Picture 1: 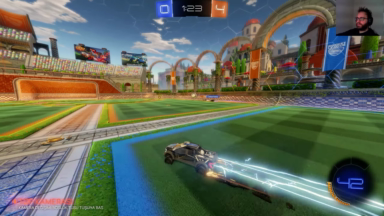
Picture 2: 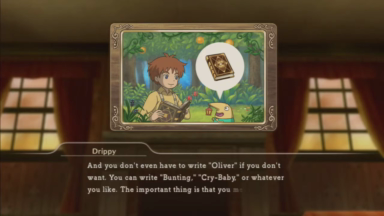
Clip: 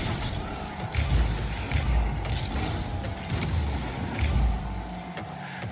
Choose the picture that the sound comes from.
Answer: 1